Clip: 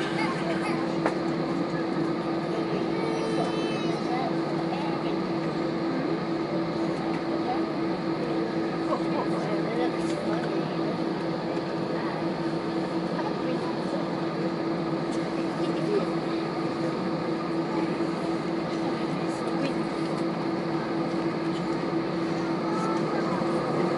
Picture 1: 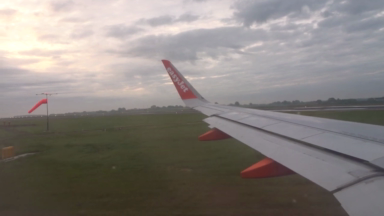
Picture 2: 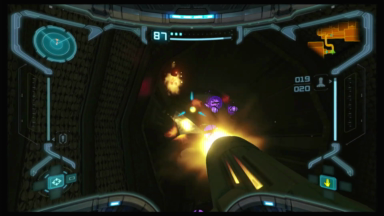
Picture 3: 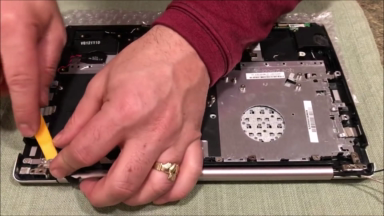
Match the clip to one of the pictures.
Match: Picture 1